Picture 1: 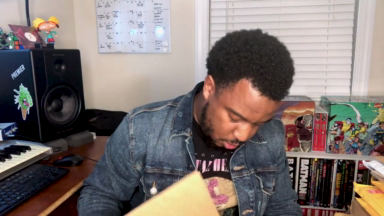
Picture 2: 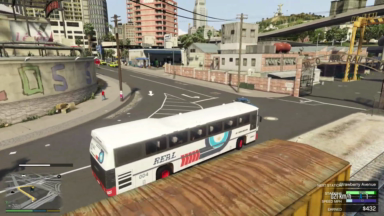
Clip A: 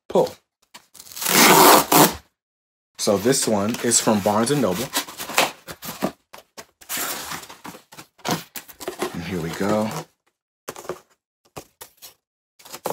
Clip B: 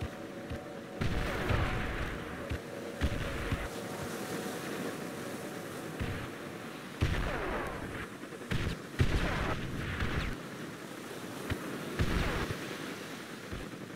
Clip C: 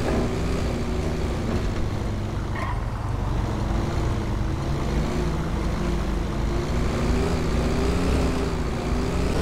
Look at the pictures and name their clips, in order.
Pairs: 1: A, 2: C